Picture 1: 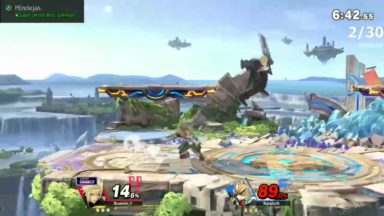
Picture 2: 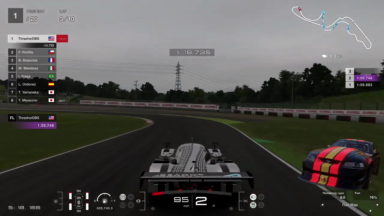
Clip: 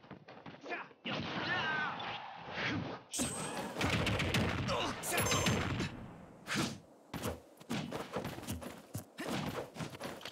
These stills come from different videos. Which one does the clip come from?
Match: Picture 1